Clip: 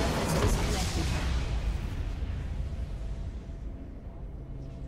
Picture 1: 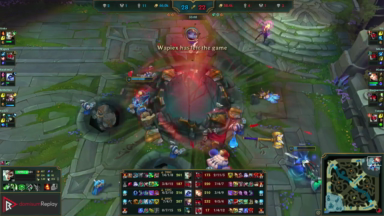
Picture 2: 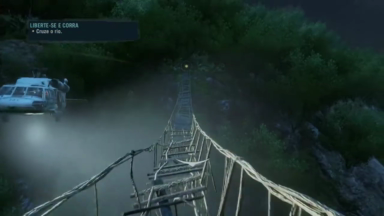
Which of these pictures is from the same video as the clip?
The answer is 1